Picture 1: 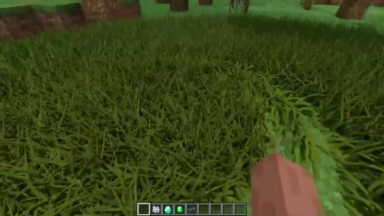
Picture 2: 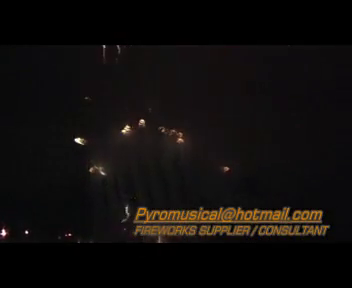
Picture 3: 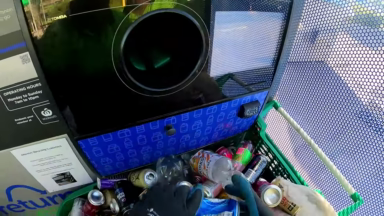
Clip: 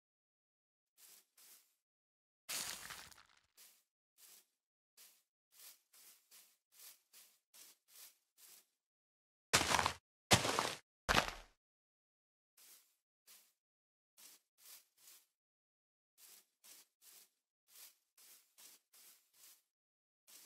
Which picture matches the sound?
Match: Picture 1